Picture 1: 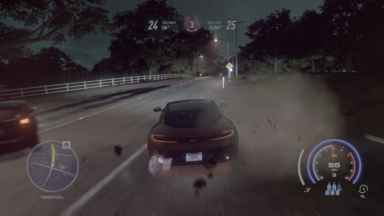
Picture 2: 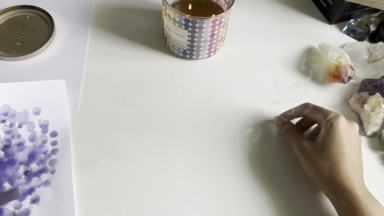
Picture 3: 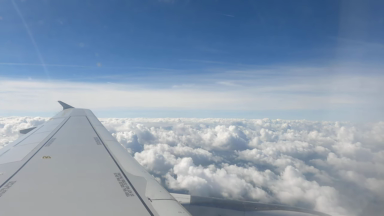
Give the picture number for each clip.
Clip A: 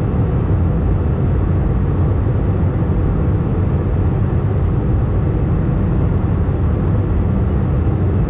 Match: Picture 3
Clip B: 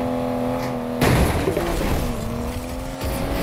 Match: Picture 1